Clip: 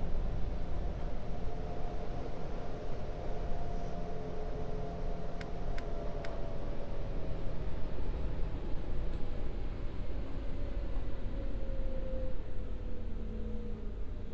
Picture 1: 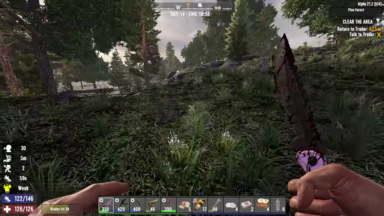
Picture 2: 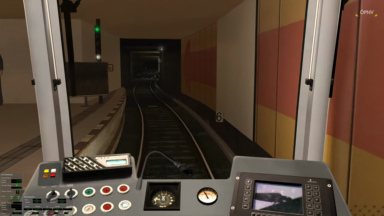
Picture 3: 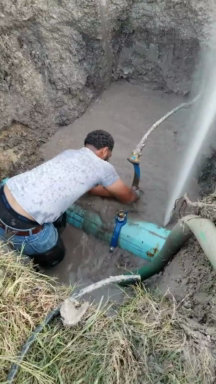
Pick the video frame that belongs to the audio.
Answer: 2